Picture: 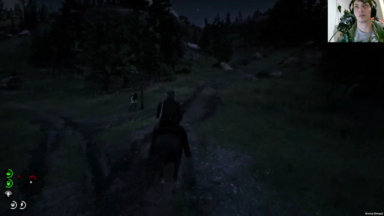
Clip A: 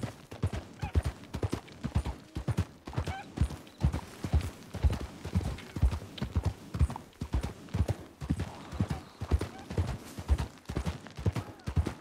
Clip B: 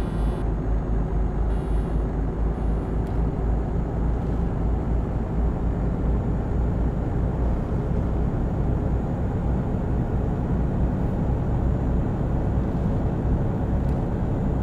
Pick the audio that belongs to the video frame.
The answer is A